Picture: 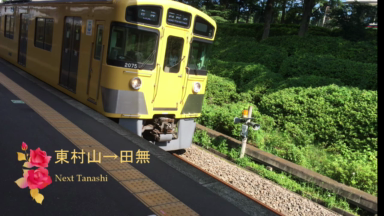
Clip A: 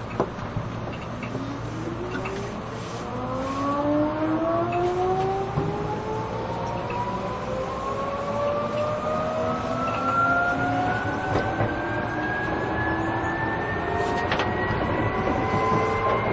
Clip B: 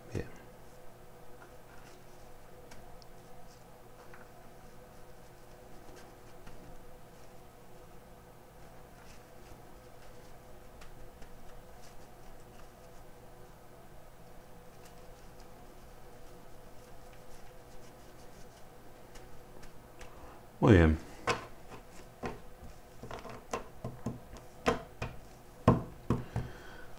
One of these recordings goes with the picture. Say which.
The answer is A